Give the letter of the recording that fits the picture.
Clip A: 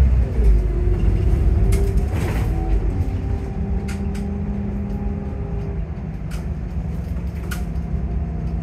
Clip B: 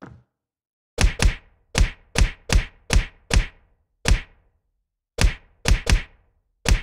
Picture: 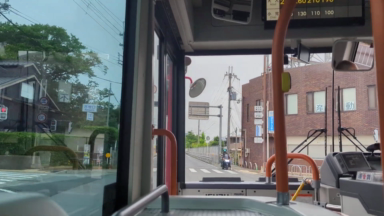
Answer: A